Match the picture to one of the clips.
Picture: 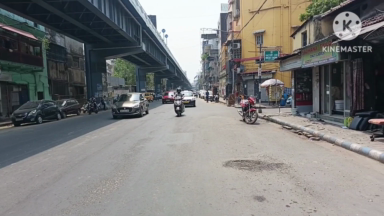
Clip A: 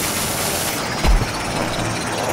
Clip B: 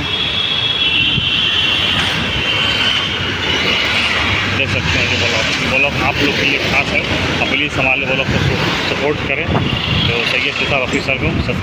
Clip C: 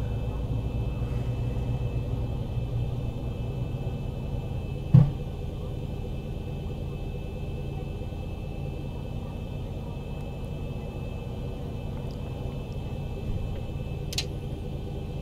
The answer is B